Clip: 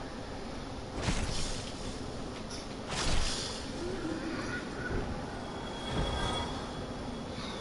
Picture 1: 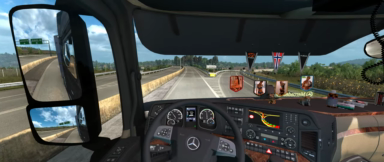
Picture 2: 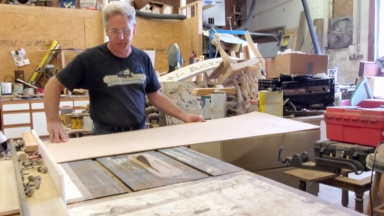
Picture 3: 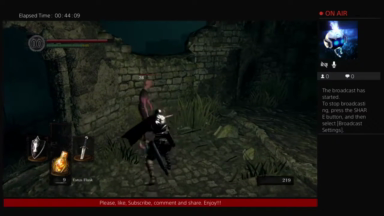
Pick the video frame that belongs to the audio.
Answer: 3